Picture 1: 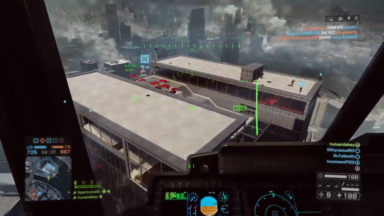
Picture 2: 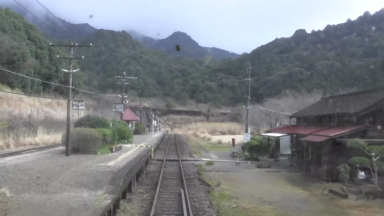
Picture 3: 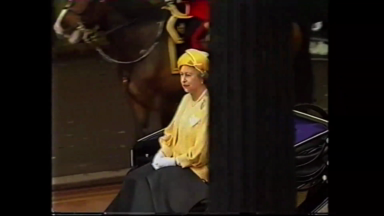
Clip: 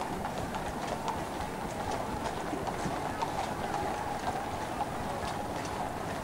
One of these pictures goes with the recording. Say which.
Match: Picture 3